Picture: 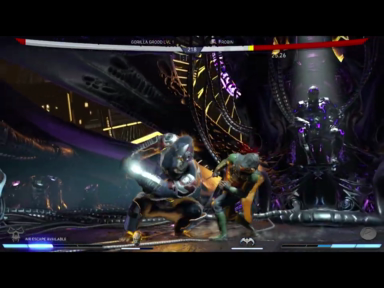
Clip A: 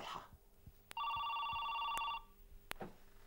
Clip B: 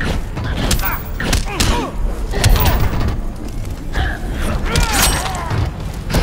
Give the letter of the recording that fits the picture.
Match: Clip B